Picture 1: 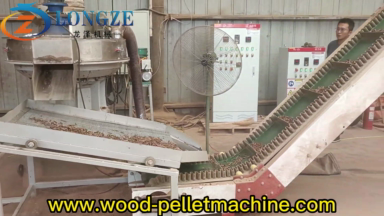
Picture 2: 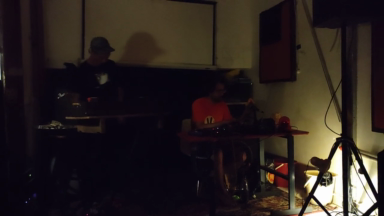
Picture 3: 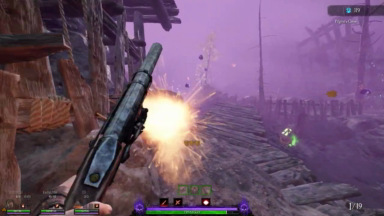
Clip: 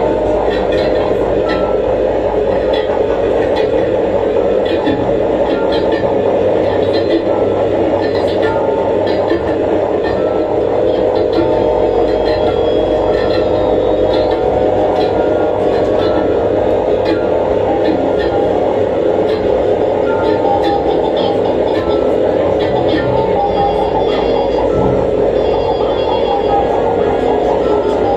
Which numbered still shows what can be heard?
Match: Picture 2